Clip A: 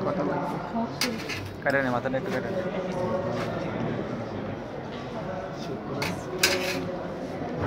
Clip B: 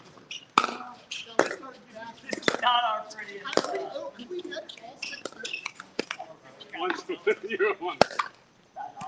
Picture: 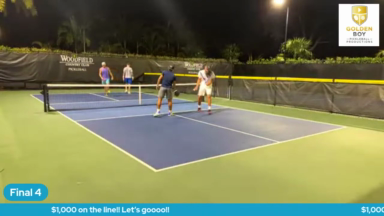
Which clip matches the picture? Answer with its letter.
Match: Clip B